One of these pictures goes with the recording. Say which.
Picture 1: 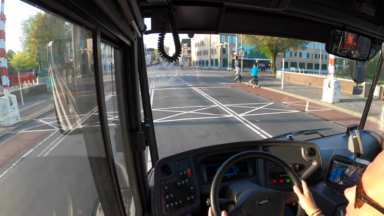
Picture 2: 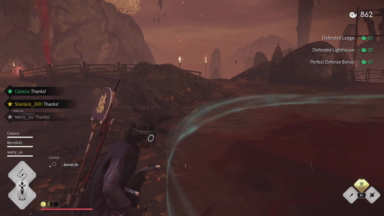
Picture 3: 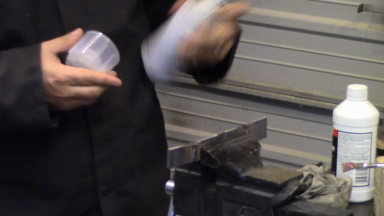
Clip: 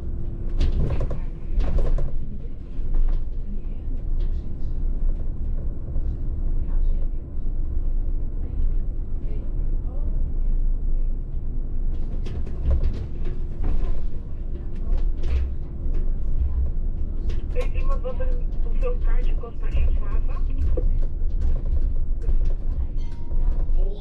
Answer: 1